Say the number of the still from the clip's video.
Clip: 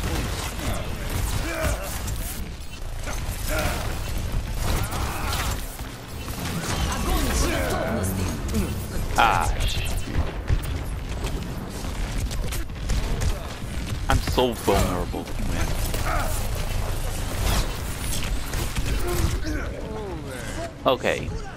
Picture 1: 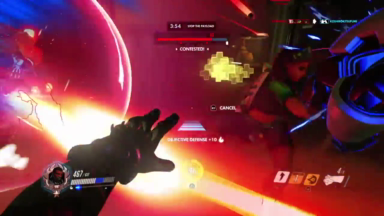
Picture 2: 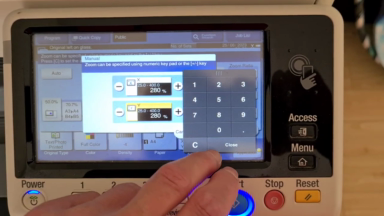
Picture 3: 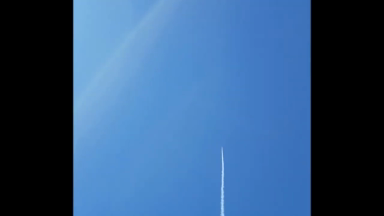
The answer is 1